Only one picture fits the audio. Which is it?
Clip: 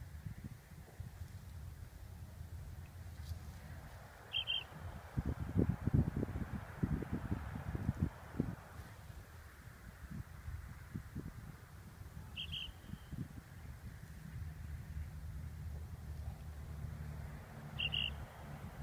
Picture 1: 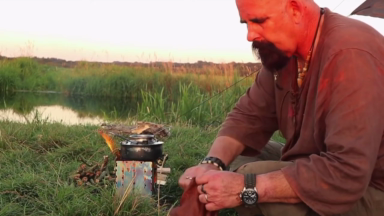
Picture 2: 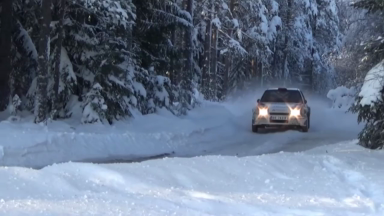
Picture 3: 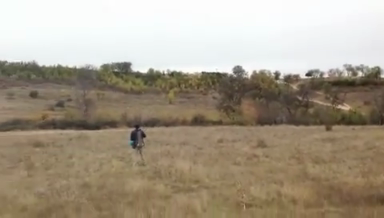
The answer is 3